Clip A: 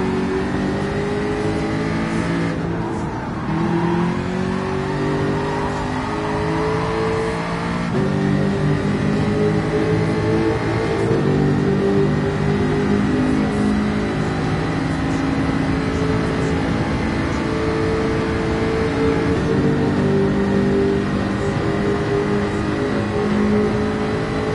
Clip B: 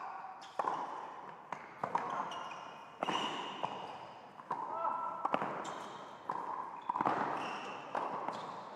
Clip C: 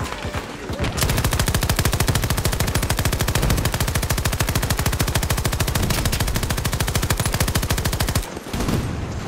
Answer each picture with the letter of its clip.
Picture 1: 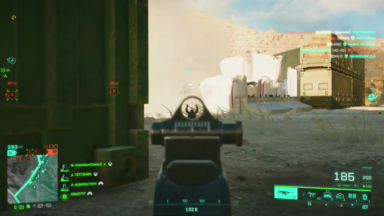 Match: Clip C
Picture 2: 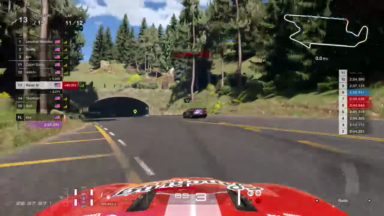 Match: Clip A